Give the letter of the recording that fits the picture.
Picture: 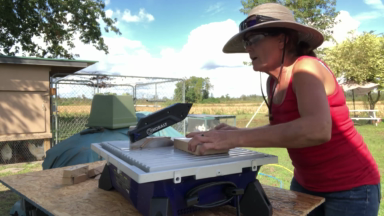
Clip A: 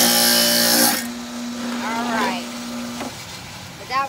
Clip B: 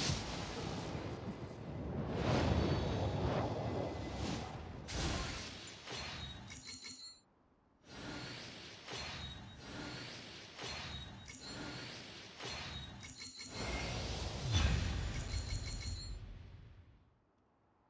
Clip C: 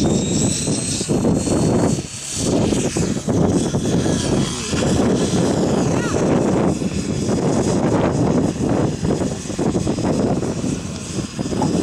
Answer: A